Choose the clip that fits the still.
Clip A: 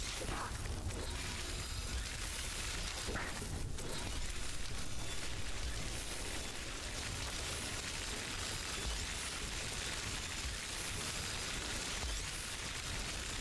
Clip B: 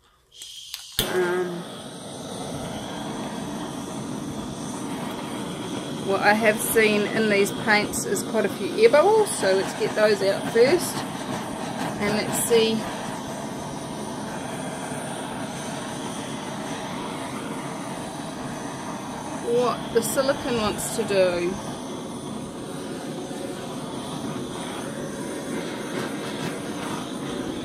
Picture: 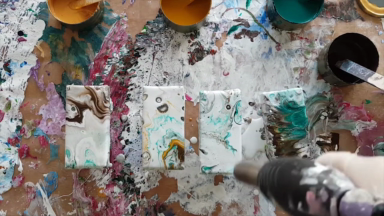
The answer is B